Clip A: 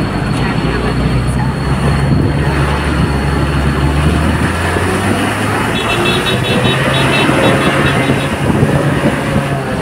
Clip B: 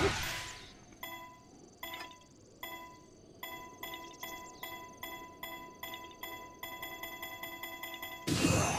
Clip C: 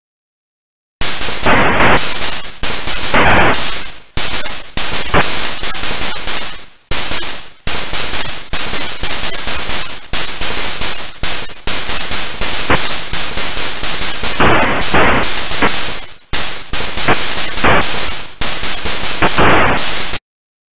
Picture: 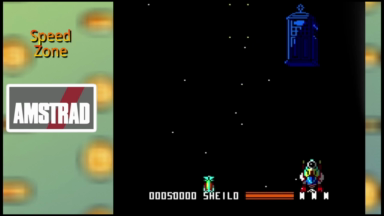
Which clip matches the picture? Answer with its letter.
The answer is C